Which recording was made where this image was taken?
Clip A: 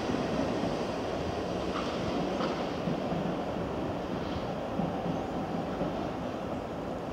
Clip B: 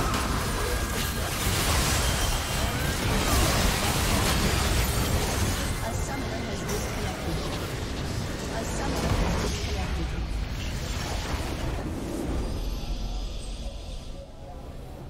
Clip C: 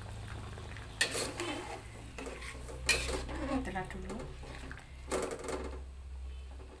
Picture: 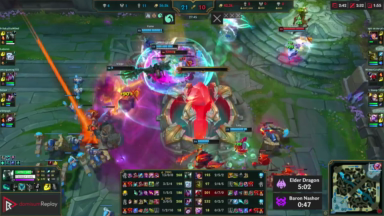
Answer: B